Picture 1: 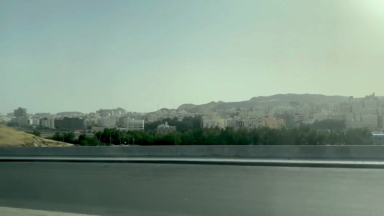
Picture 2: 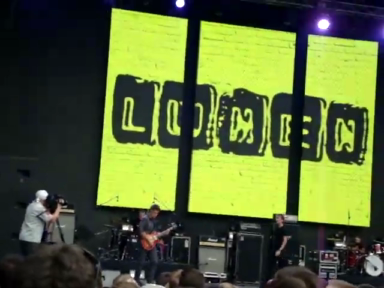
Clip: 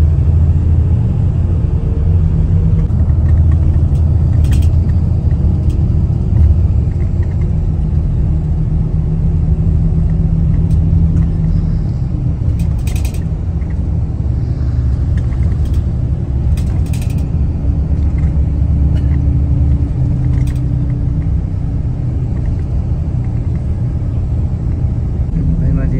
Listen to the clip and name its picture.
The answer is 1